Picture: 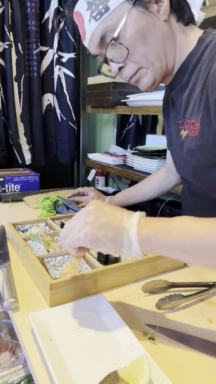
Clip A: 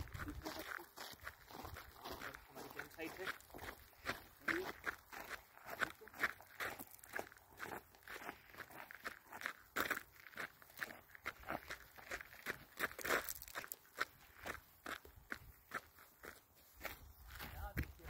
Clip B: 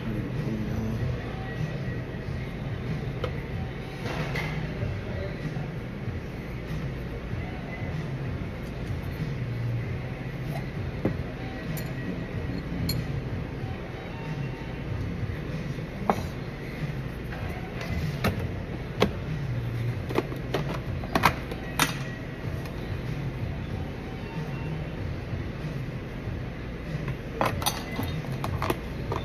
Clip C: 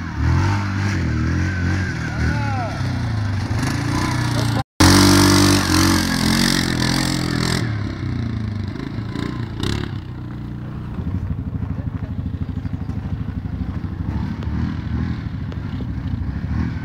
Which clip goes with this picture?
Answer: B